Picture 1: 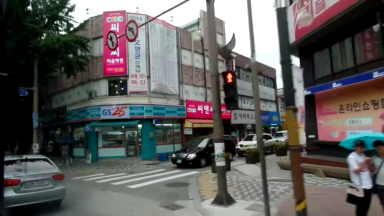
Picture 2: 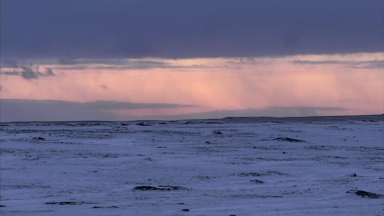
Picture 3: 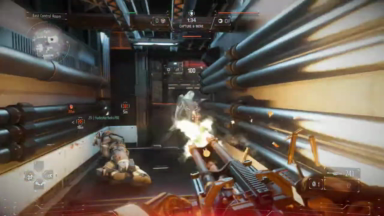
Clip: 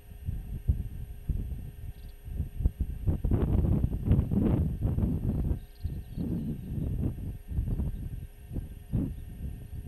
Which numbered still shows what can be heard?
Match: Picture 2